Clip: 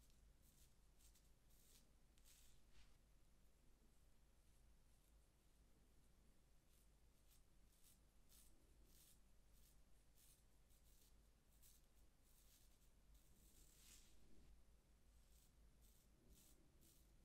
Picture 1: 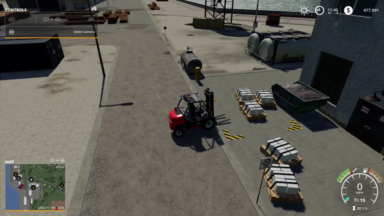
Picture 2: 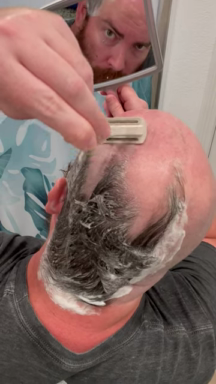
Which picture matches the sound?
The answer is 2